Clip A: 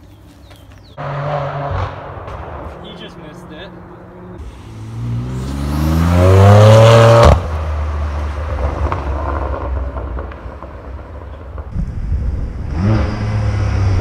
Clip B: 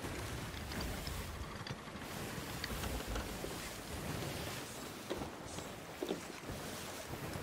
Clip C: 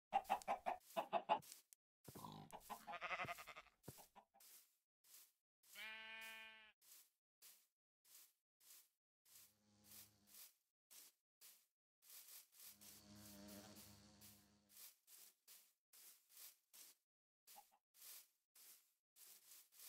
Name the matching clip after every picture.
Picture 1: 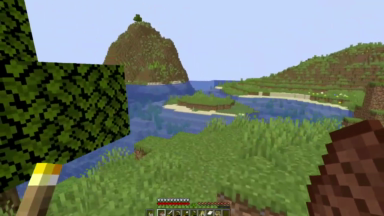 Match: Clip C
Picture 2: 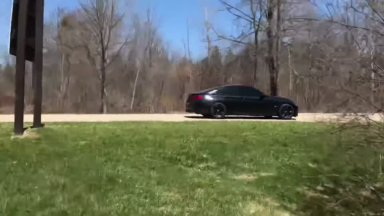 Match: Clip A